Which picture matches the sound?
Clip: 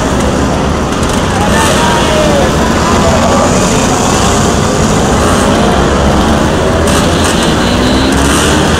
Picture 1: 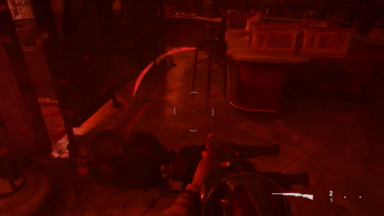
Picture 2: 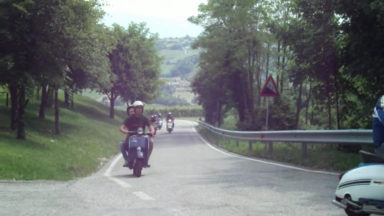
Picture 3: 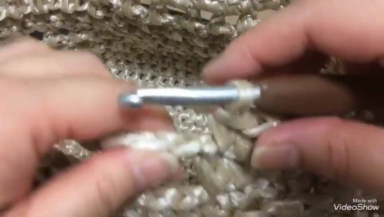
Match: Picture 2